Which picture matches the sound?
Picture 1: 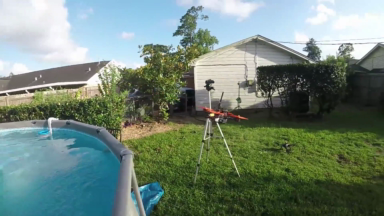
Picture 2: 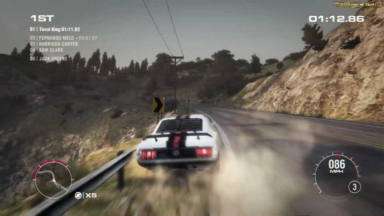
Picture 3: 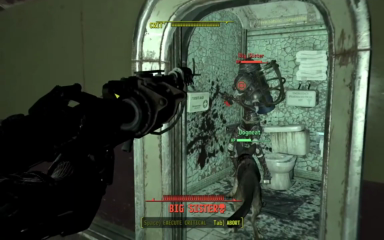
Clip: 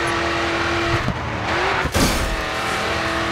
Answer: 2